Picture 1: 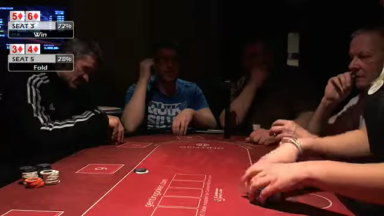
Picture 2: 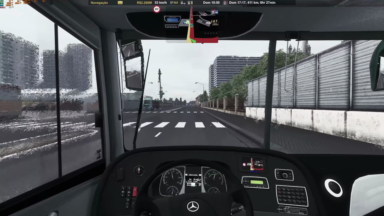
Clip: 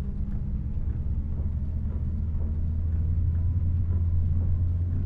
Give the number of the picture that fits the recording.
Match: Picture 2